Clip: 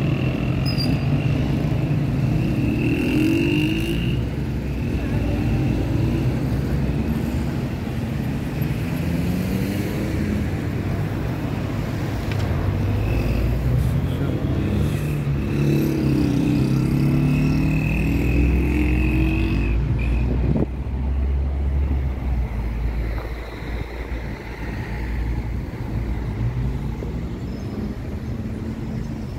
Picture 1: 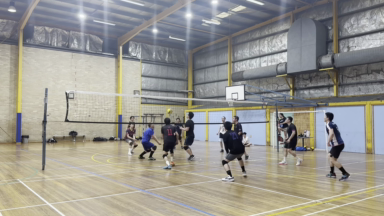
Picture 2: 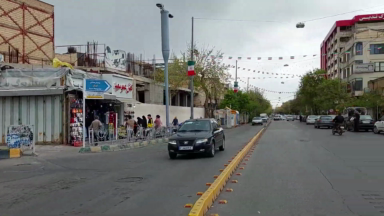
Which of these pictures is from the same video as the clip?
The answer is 2